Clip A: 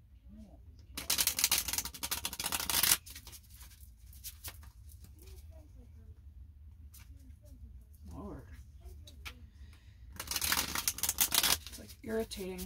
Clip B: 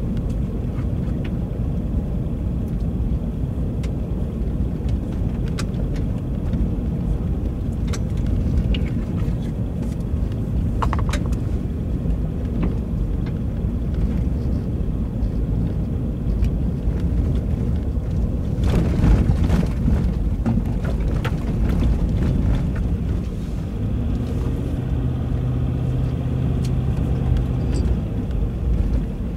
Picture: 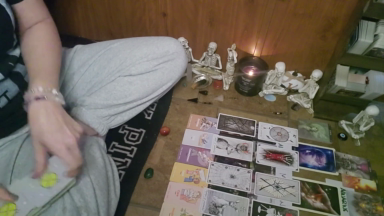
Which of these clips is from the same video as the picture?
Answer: A